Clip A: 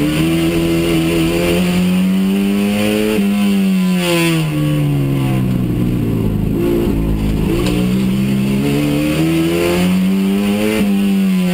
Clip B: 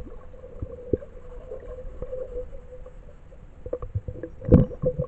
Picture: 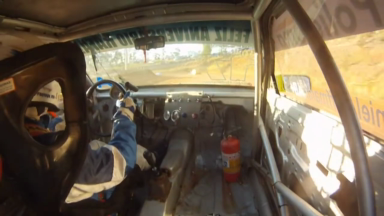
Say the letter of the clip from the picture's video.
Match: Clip A